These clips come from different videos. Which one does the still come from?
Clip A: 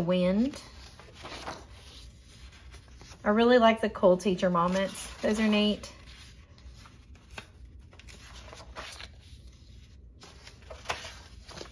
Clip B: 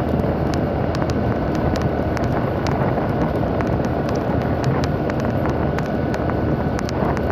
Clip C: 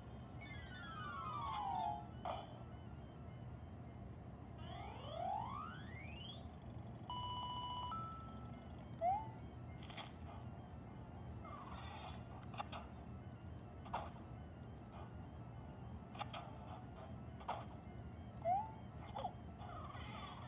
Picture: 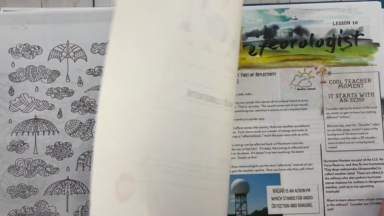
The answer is A